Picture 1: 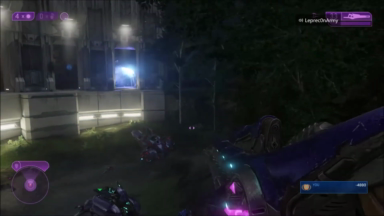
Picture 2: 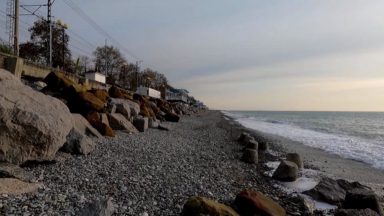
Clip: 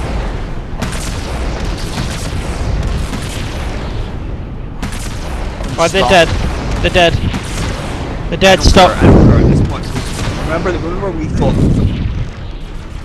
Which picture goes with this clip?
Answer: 1